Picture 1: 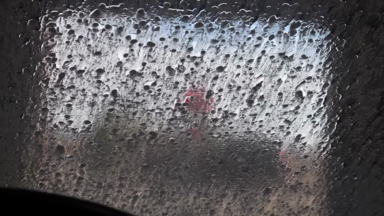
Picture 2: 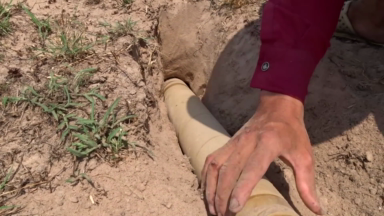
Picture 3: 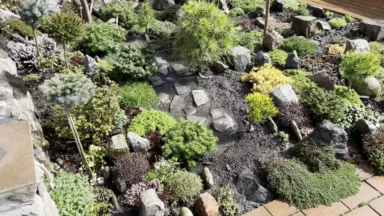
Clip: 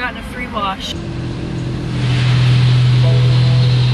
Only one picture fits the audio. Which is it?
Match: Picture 1